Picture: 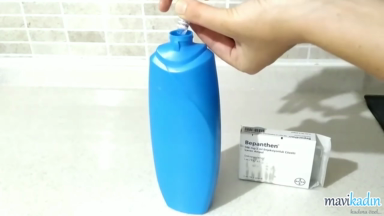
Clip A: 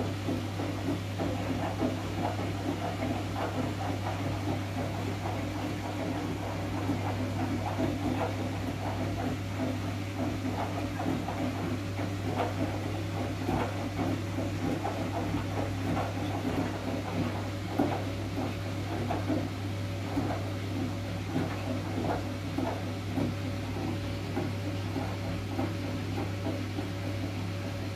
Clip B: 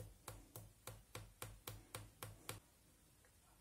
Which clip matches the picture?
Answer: B